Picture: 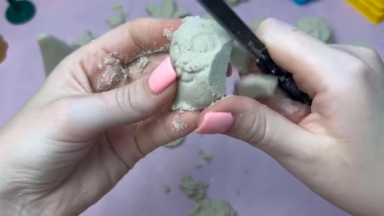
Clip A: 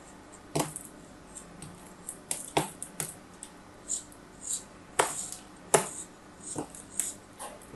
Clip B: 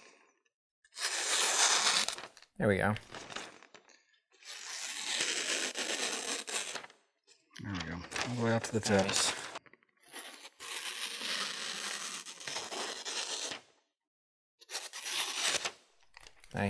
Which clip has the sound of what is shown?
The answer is A